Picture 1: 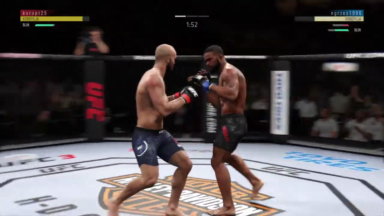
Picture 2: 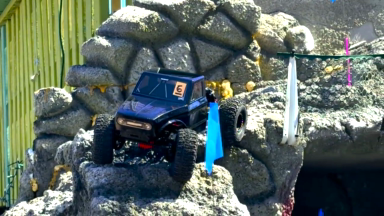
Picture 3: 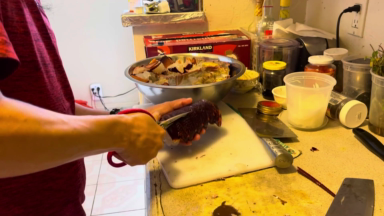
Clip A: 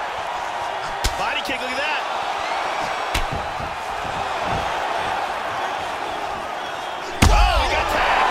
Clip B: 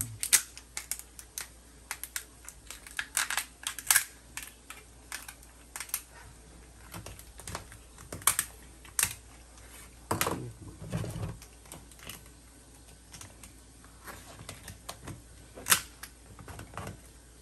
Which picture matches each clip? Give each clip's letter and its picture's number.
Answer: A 1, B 3